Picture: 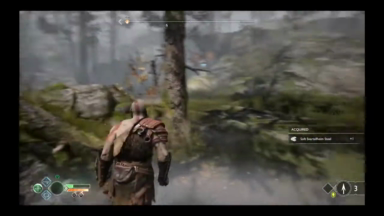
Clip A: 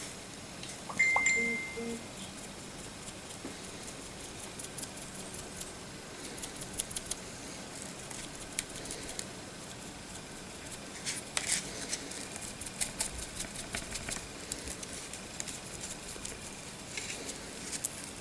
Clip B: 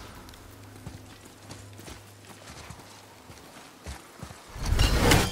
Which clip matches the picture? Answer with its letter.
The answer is B